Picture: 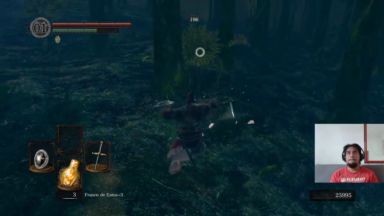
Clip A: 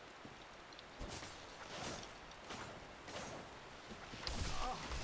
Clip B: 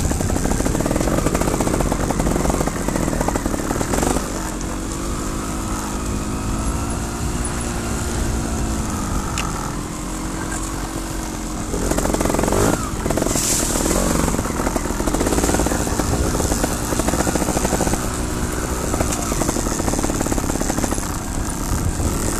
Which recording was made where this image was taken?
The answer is A